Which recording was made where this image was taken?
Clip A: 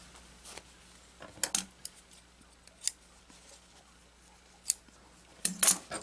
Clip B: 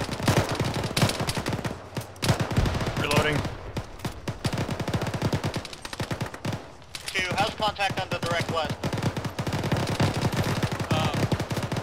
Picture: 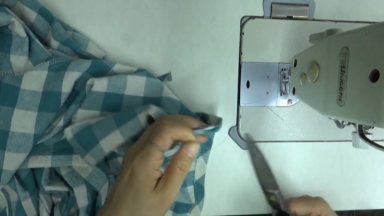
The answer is A